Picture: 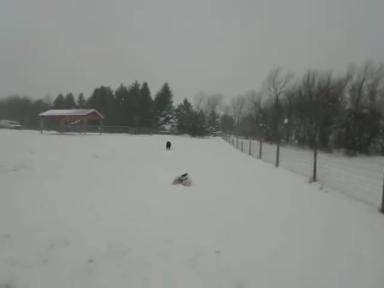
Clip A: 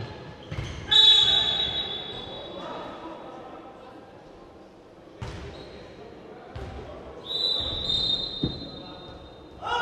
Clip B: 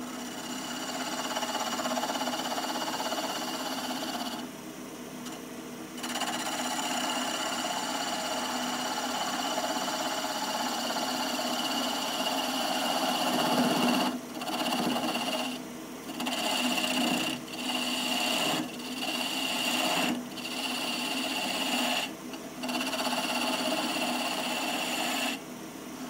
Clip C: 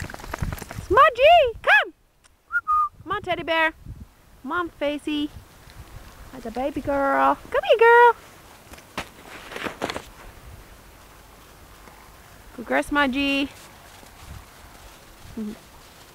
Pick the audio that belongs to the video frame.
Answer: C